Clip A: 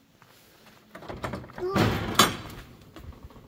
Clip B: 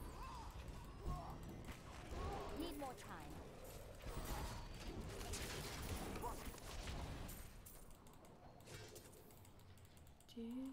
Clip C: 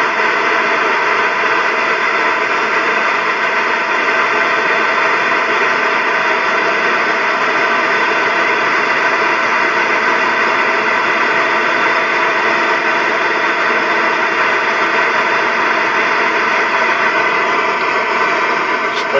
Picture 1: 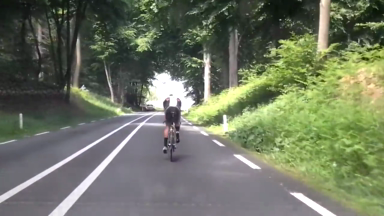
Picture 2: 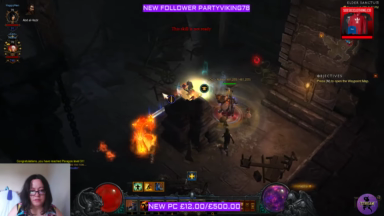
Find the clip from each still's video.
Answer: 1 C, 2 B